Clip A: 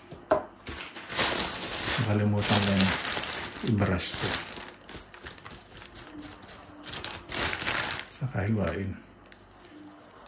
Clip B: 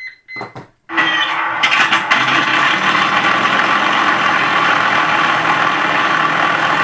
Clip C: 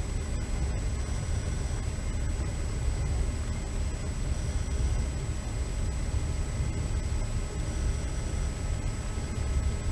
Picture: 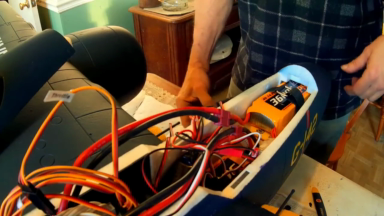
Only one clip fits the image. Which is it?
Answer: B